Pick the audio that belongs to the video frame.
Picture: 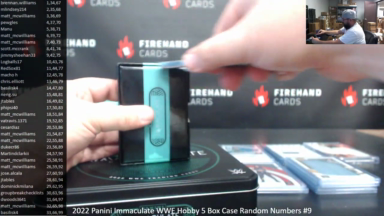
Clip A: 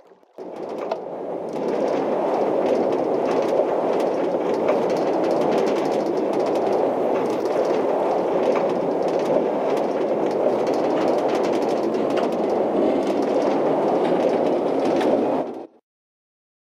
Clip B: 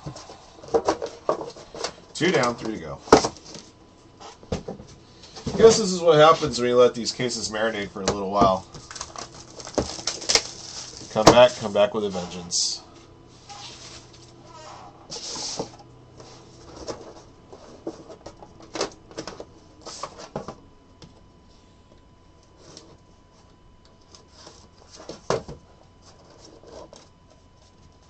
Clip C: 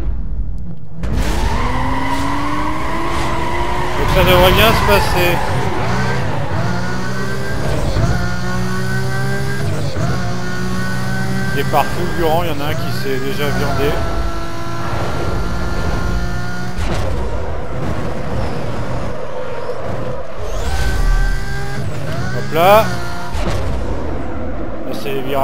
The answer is B